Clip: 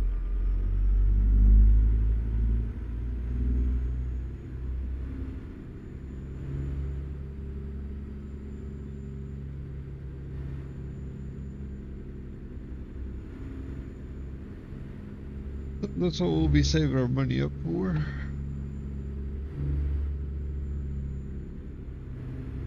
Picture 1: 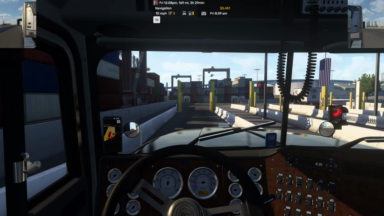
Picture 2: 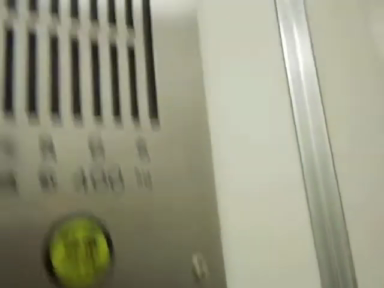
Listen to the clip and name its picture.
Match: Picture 1